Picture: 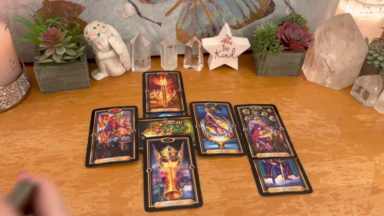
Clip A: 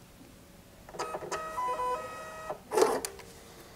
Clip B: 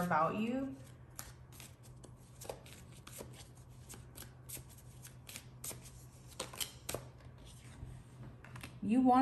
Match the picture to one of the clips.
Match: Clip B